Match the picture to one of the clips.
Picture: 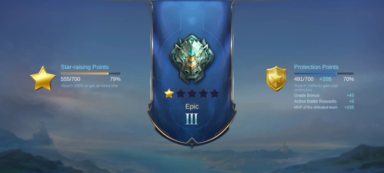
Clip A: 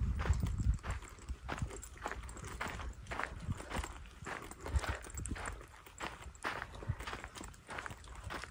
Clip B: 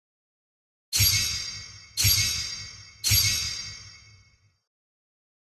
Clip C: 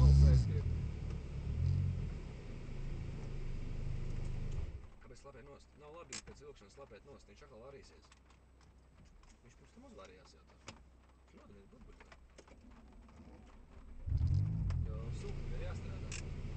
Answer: B